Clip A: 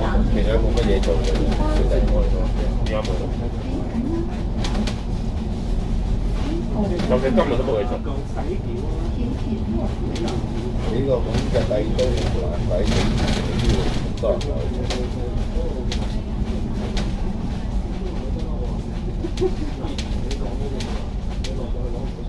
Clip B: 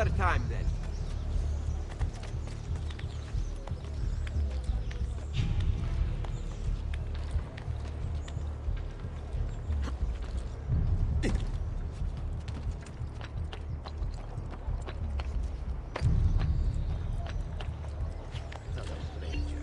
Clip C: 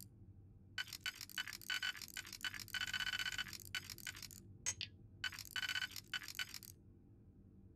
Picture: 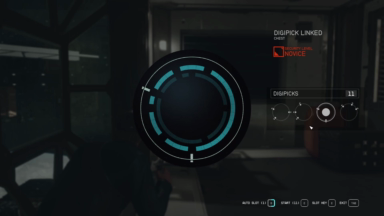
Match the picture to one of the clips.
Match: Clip C